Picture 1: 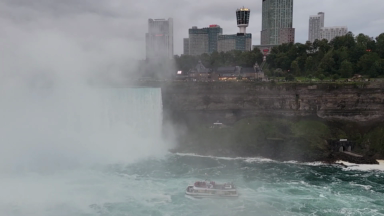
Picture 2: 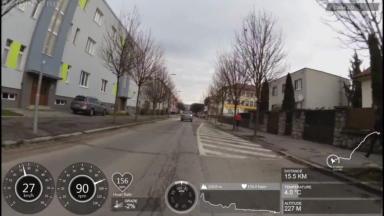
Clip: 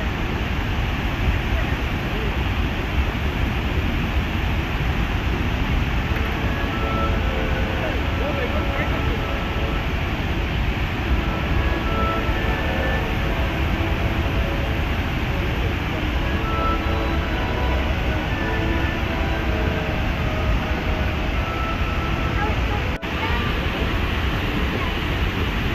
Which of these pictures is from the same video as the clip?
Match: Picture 1